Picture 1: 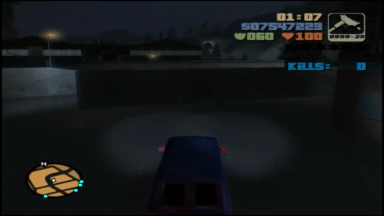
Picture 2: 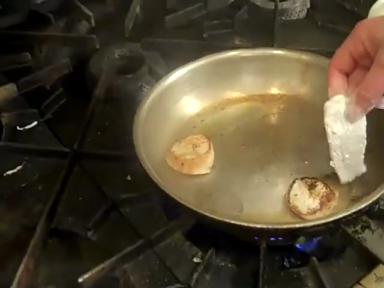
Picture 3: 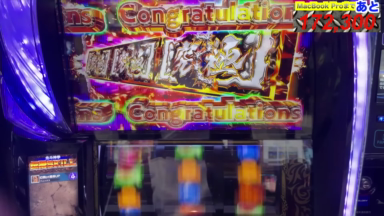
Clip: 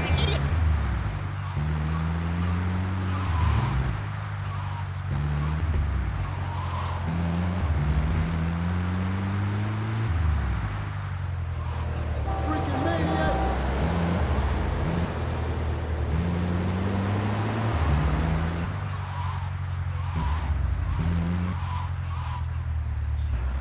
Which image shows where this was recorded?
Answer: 1